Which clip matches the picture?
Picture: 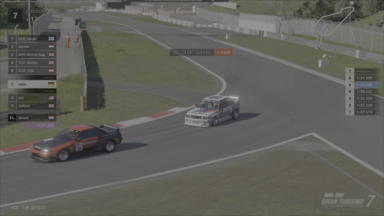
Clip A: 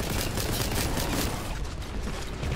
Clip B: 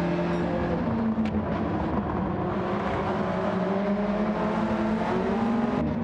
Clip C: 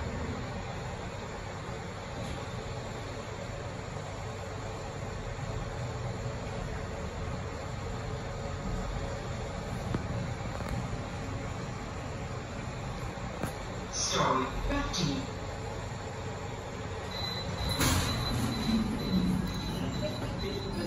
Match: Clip B